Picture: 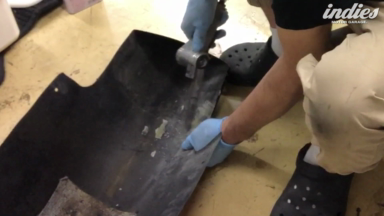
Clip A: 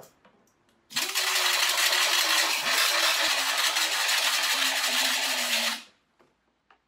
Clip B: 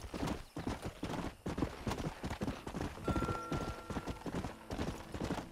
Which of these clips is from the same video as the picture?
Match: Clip A